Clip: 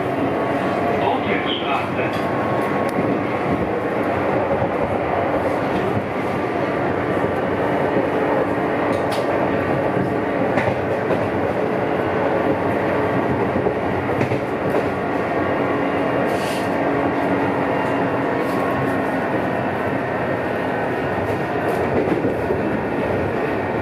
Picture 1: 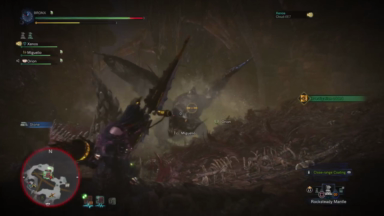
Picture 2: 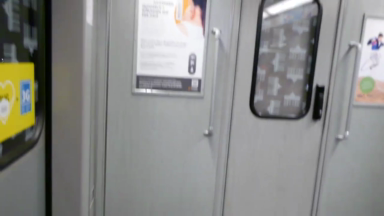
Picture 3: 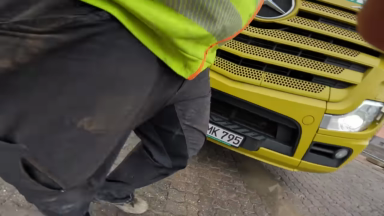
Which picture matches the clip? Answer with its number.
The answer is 2